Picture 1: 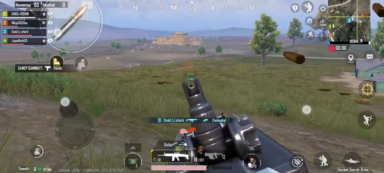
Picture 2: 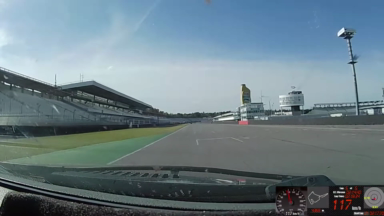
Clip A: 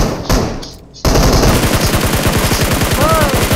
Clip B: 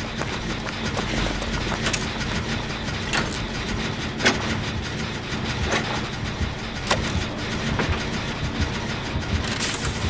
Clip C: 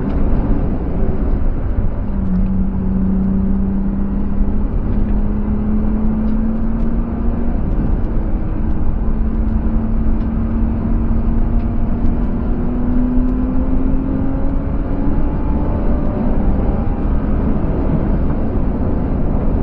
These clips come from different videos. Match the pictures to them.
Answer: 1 A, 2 C